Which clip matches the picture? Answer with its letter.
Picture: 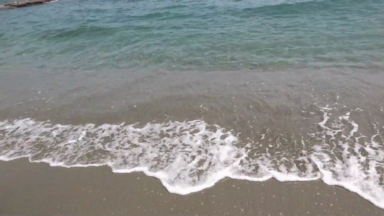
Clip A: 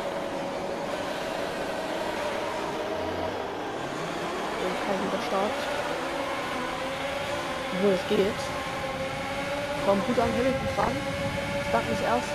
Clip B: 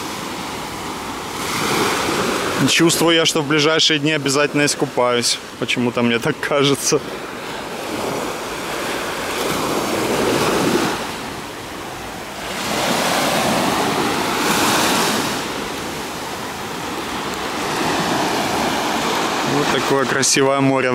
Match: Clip B